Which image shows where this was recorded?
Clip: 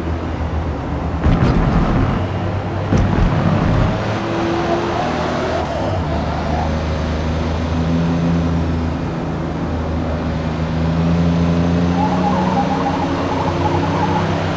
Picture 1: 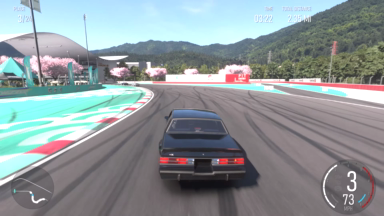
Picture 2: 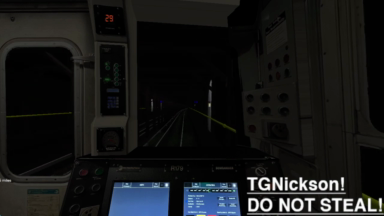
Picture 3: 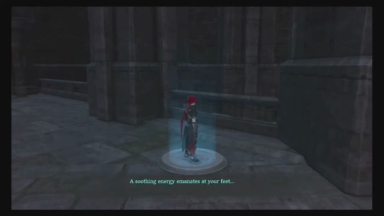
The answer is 1